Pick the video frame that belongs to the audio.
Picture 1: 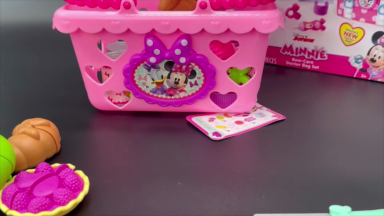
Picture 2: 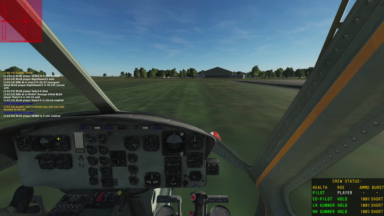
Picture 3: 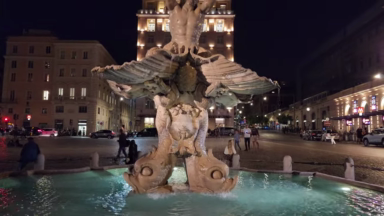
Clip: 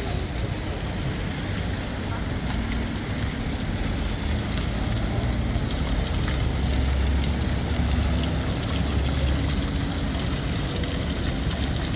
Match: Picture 3